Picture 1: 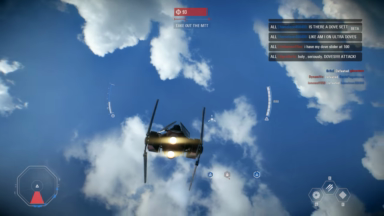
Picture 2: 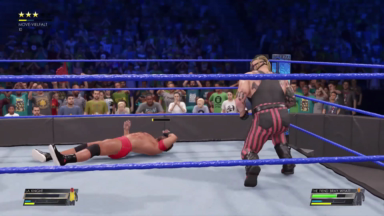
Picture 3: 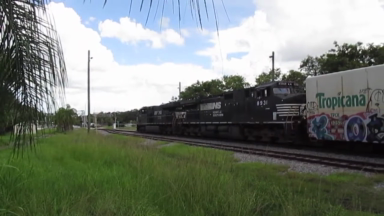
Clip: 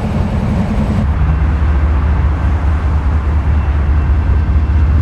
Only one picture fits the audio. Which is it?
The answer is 3